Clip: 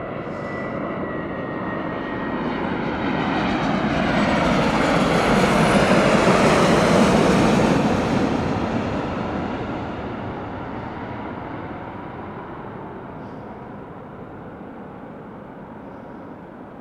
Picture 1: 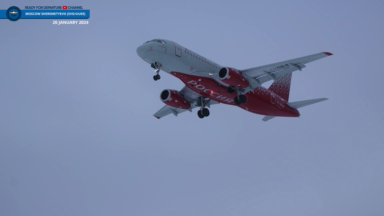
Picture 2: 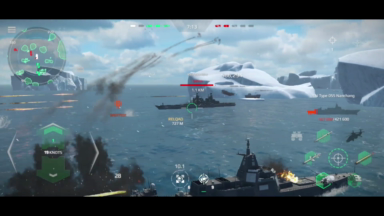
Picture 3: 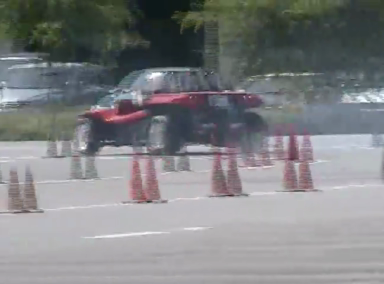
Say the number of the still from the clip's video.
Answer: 1